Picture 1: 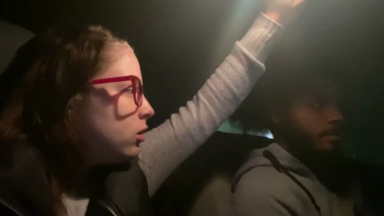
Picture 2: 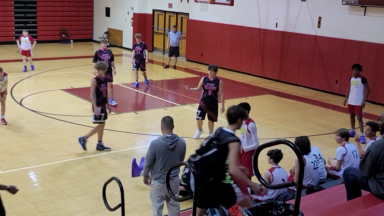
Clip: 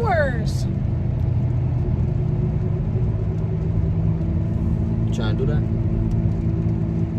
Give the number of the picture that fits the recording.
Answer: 1